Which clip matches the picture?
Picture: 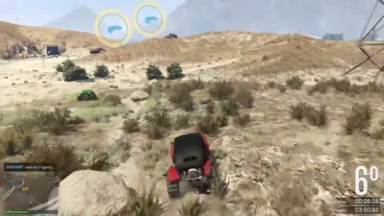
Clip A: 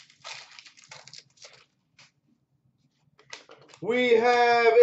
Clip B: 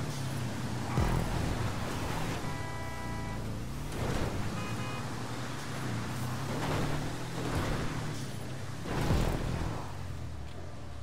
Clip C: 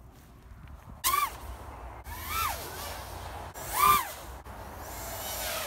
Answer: B